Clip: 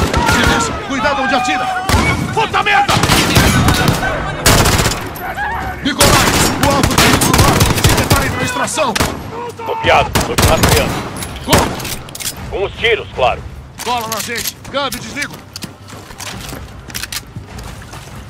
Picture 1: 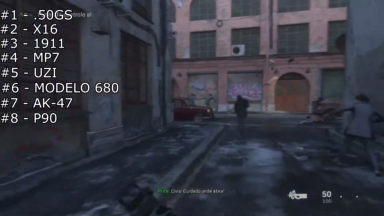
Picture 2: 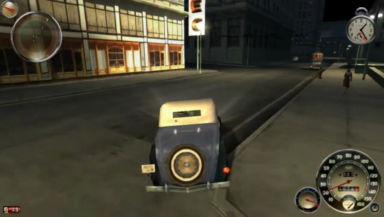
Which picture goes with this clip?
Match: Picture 1